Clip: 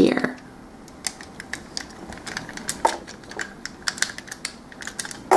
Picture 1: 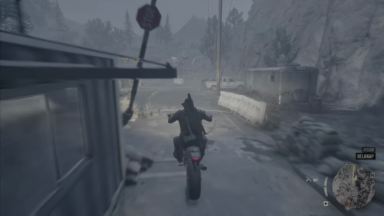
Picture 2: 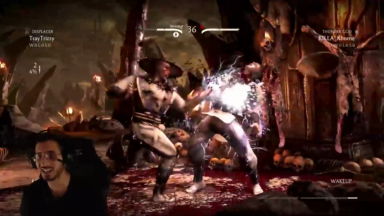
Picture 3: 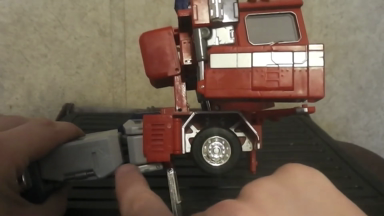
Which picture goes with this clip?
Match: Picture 3